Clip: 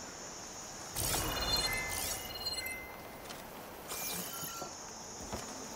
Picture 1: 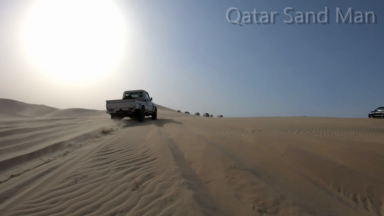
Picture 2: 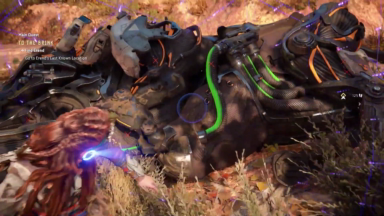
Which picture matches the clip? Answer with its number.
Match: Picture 2